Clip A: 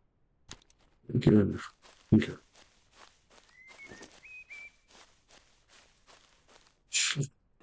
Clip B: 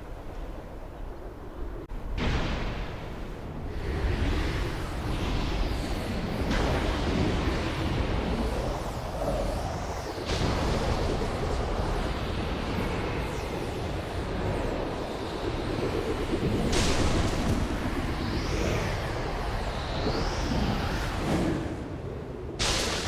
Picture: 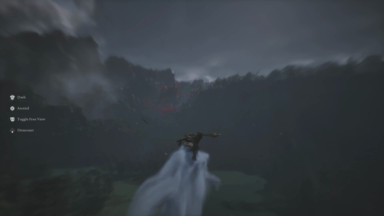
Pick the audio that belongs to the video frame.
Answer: B